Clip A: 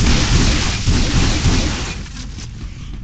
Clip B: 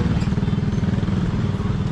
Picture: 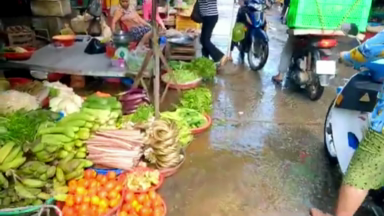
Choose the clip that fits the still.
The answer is B